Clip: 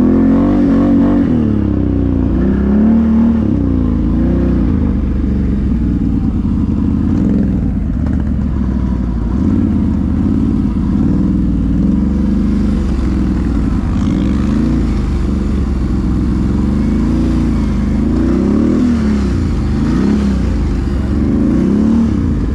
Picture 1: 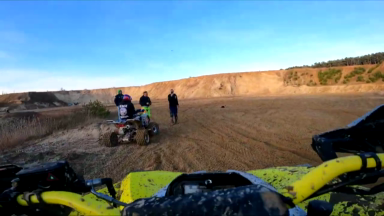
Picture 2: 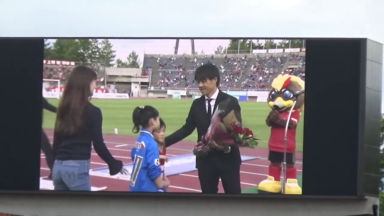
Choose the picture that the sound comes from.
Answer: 1